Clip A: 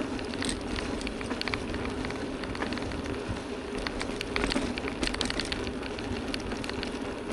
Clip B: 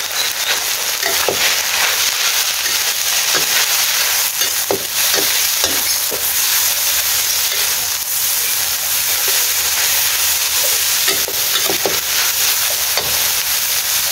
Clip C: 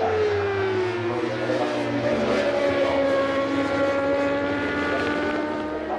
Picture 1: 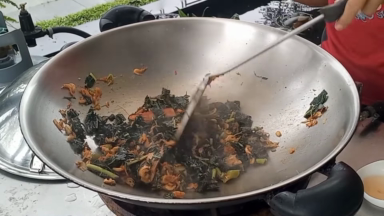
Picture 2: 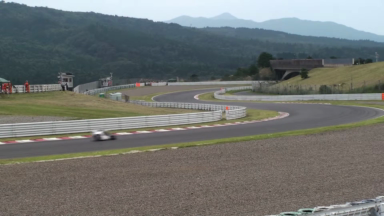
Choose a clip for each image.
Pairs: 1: B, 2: C